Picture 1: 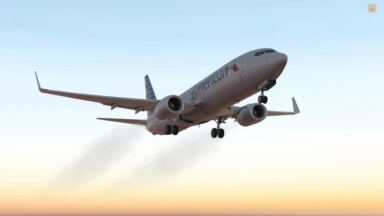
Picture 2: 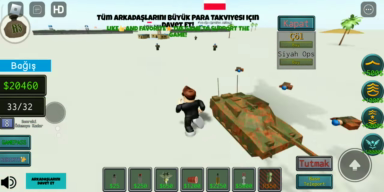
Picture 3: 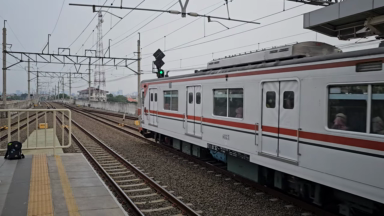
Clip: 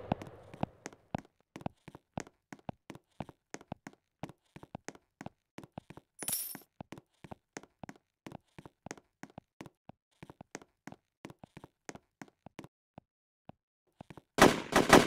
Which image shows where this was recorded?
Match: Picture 2